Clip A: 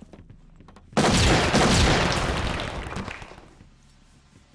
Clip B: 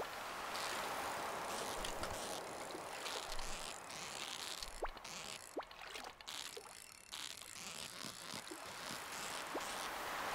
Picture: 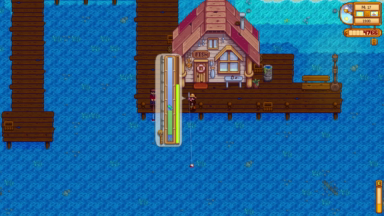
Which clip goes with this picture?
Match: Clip B